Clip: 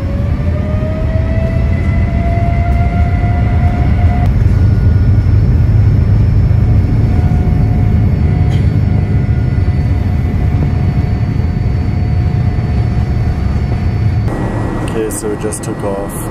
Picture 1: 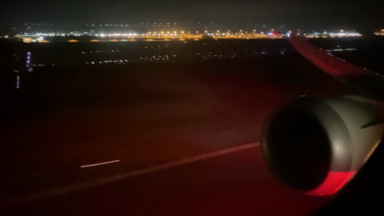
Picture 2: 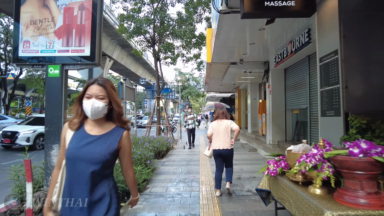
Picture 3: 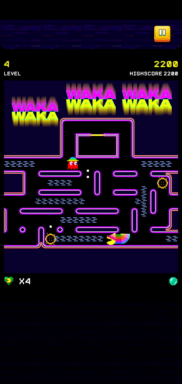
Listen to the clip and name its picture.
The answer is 1